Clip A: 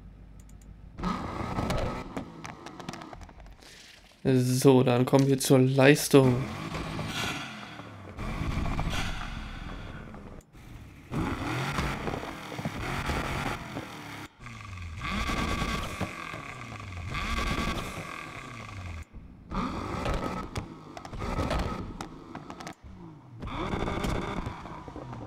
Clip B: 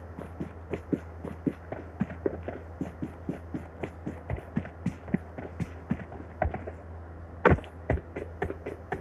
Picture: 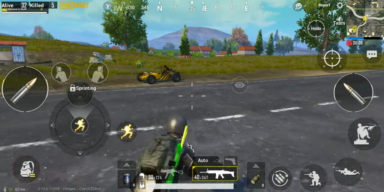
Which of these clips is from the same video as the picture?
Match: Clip B